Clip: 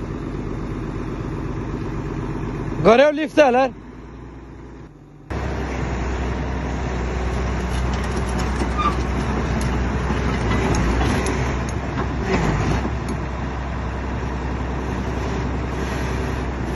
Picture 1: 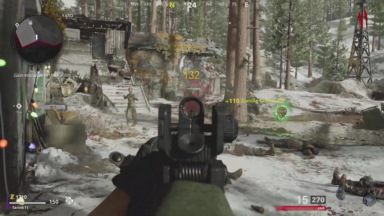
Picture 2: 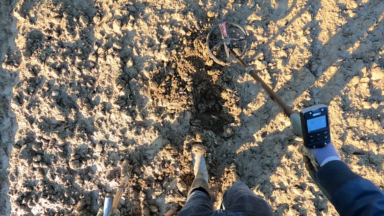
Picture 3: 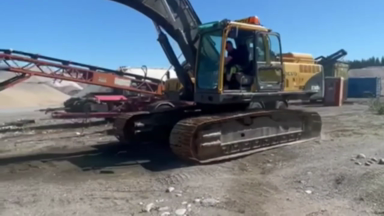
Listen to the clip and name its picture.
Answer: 3